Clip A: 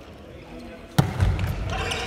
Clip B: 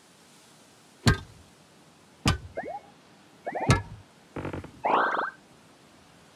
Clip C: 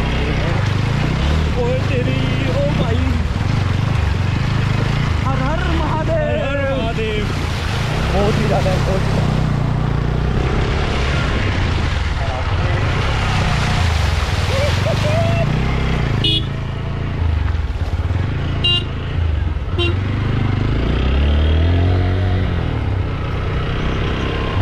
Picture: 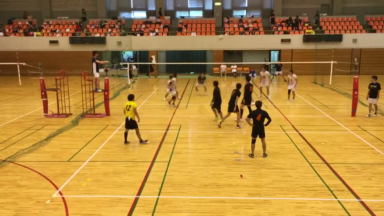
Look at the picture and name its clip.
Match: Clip A